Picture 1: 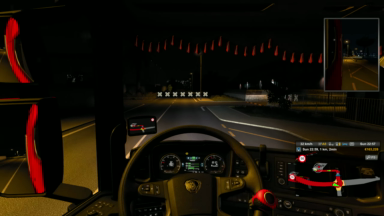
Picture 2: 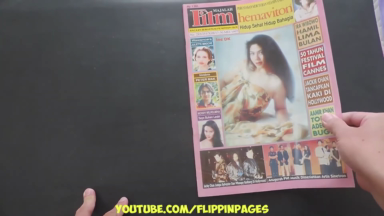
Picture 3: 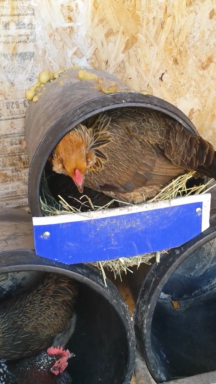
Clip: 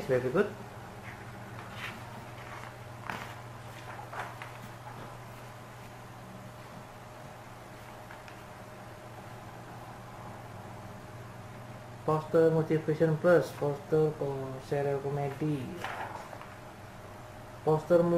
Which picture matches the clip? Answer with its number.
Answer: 2